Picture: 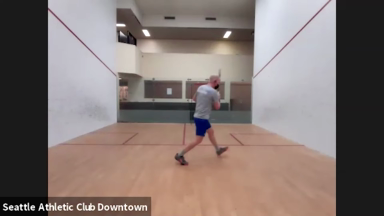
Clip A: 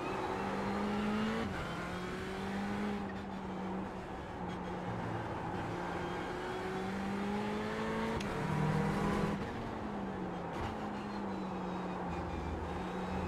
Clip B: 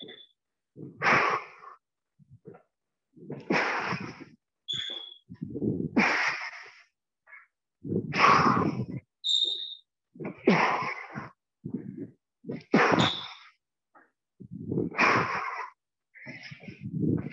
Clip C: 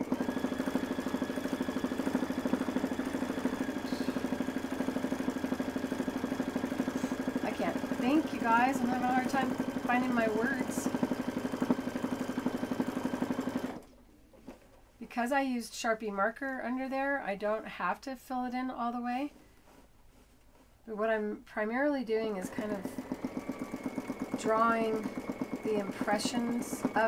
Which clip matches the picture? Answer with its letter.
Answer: B